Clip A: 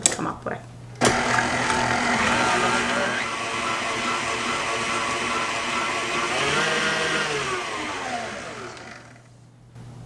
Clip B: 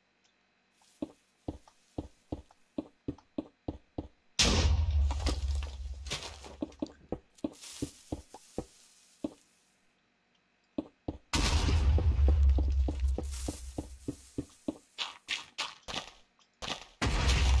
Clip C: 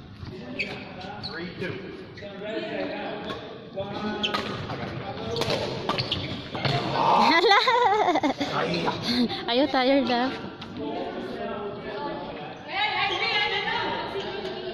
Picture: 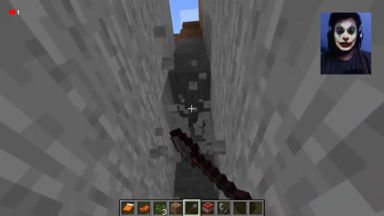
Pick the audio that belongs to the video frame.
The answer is B